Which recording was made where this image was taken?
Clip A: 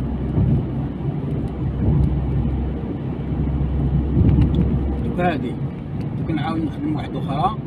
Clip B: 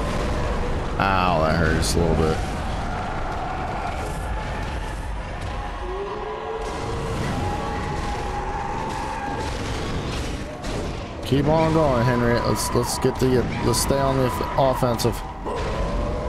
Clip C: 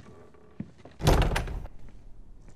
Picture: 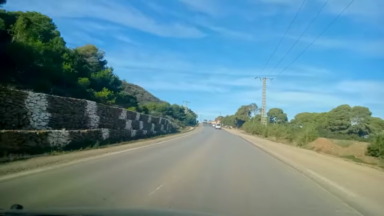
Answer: A